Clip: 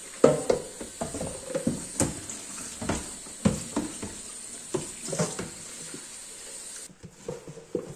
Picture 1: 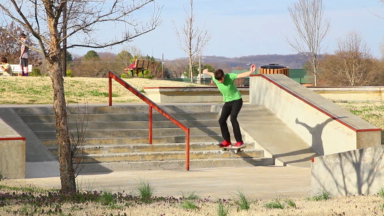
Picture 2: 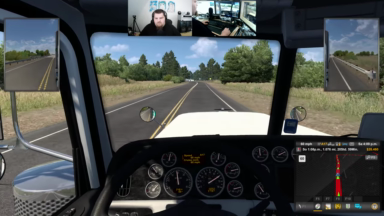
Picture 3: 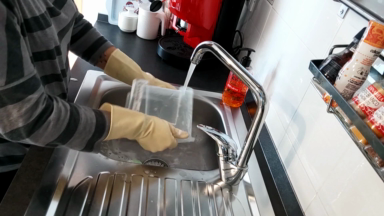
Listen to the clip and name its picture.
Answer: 3